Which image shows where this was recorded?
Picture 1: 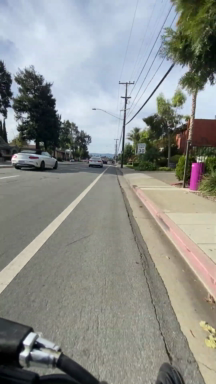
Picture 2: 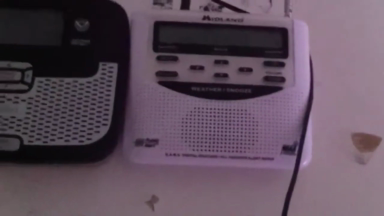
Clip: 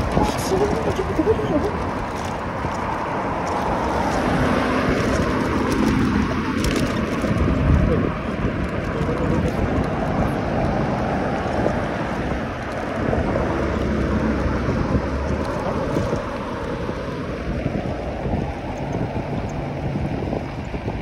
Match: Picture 1